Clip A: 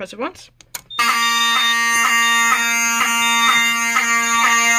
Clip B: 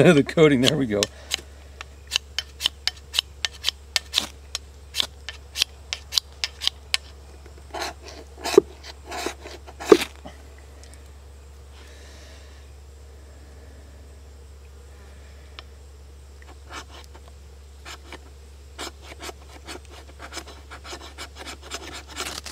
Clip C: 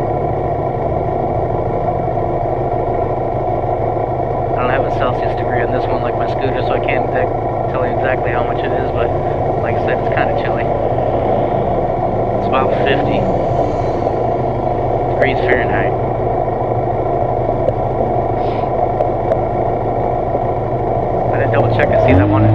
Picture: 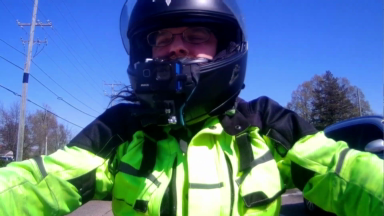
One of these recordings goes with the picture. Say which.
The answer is C